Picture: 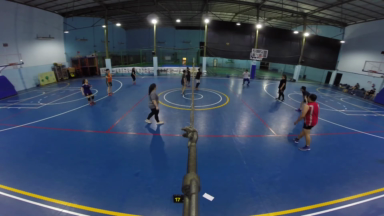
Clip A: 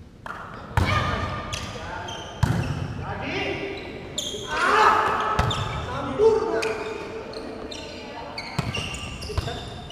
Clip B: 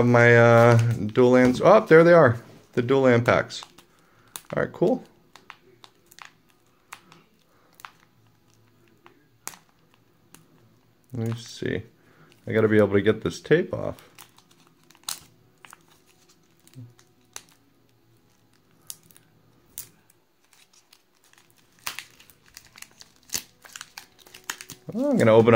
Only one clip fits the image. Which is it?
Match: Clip A